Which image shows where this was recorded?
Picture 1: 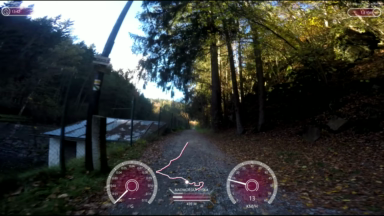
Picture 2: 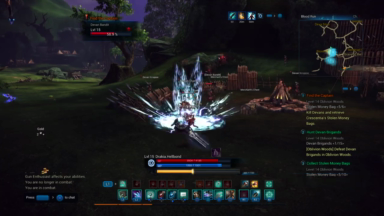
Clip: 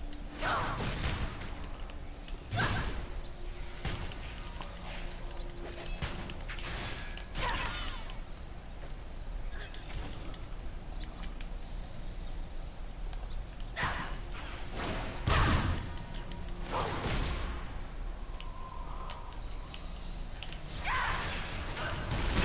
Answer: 2